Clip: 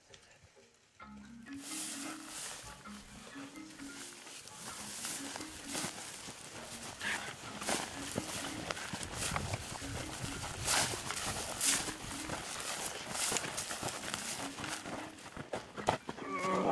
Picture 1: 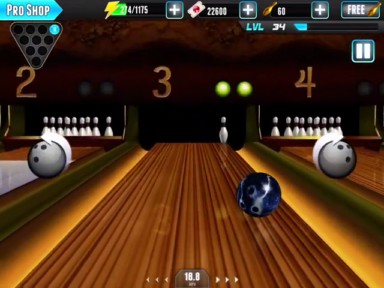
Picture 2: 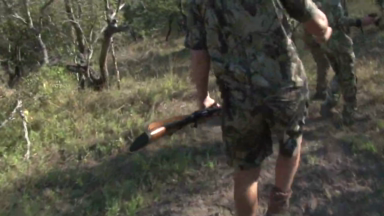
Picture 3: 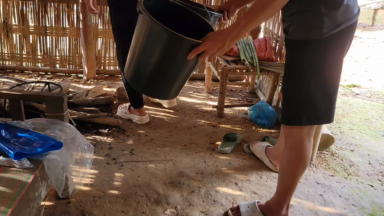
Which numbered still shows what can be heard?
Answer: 2